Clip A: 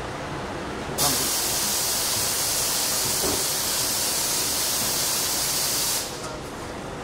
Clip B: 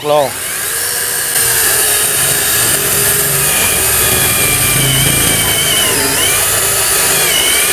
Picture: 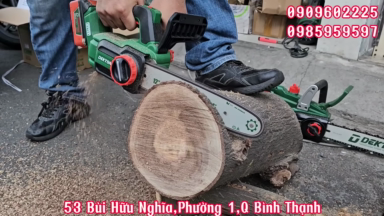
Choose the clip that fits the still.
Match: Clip B